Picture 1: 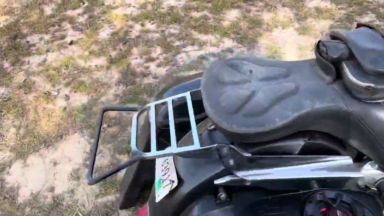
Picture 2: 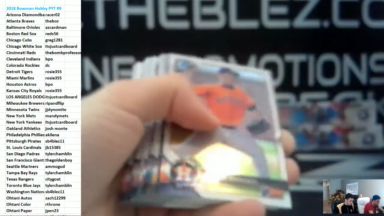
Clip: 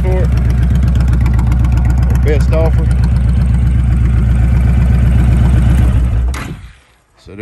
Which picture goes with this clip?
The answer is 1